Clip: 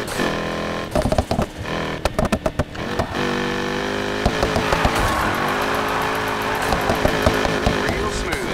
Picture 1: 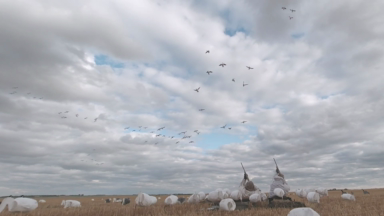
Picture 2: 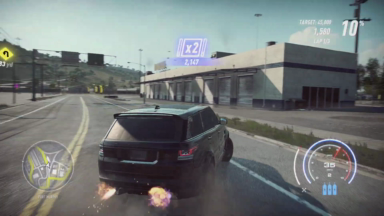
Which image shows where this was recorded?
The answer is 2